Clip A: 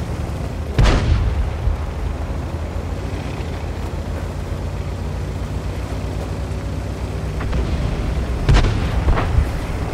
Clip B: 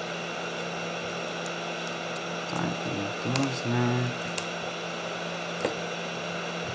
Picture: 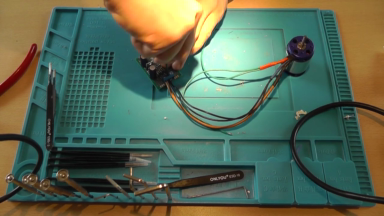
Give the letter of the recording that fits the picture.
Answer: B